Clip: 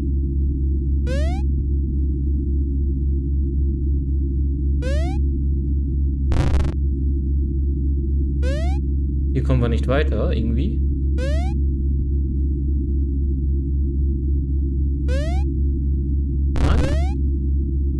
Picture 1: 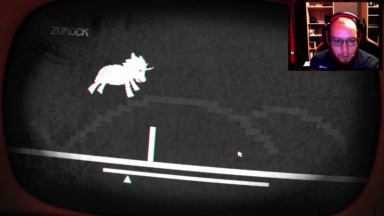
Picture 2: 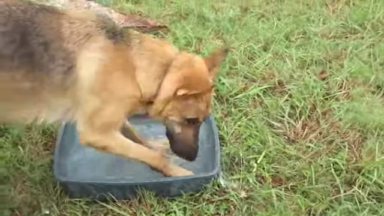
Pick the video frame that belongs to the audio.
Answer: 1